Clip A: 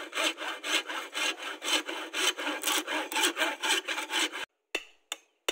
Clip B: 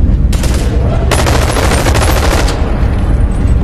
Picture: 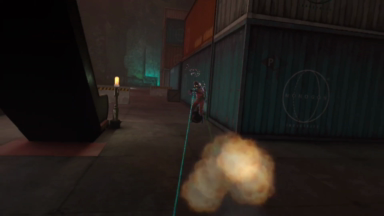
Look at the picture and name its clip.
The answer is B